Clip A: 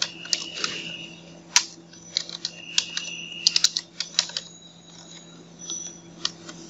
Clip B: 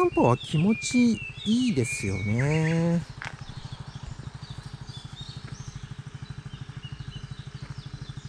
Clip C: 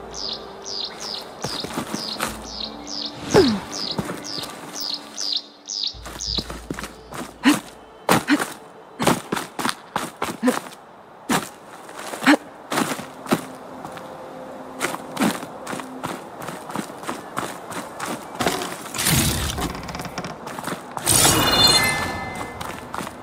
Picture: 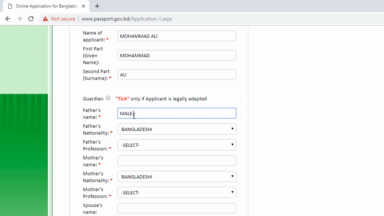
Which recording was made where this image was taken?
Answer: A